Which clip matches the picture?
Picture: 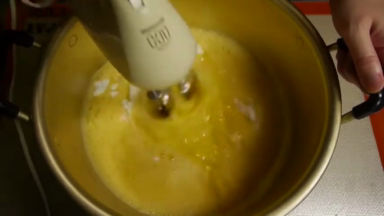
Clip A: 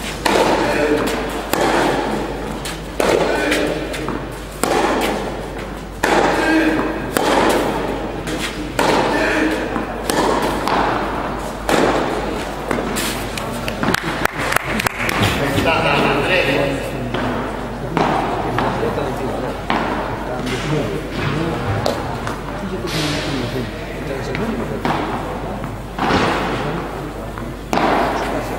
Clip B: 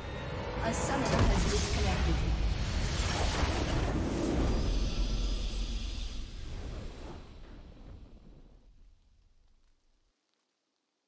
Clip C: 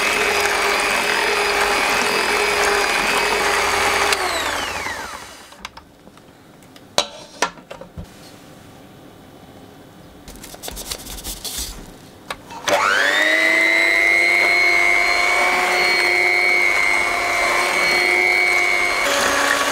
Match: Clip C